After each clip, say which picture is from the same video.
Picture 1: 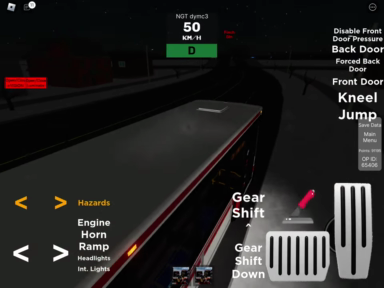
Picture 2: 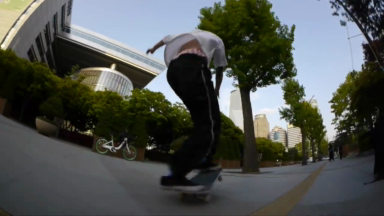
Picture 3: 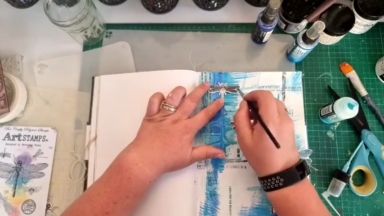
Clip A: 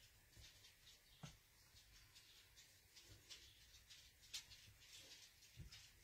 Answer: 3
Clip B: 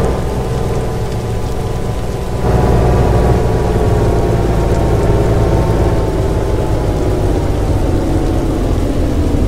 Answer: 1